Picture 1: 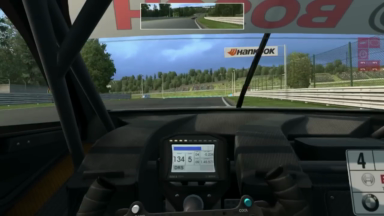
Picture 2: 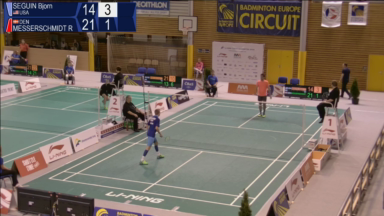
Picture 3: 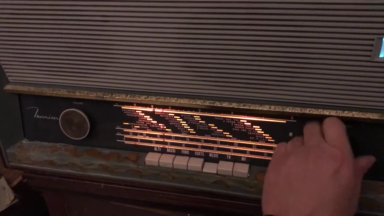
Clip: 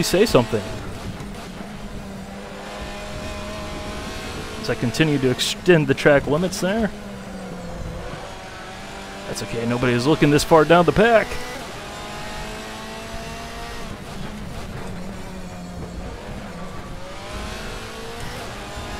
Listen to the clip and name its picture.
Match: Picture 1